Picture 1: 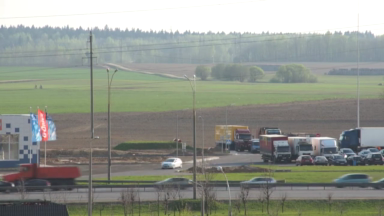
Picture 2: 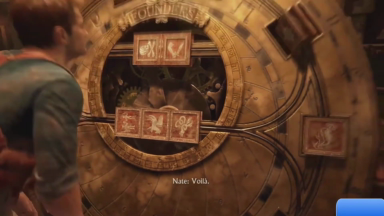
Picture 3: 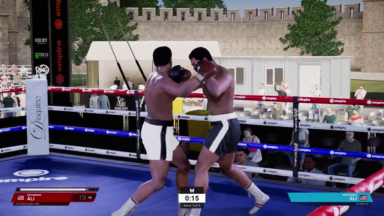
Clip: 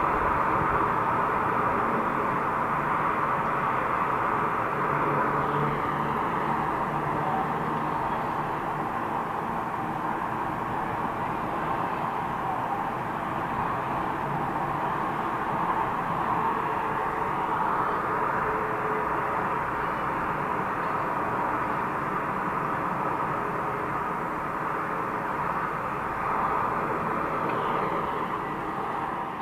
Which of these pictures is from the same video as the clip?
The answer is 1